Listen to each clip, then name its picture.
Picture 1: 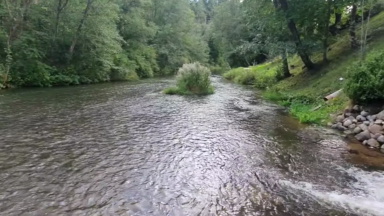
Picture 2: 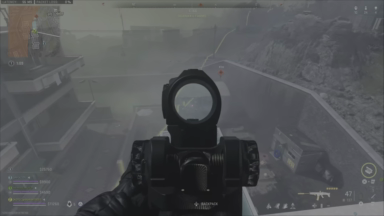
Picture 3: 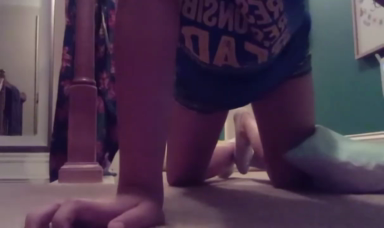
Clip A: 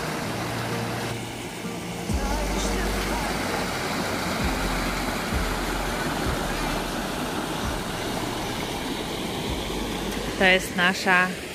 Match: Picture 1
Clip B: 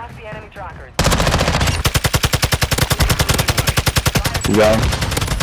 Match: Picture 2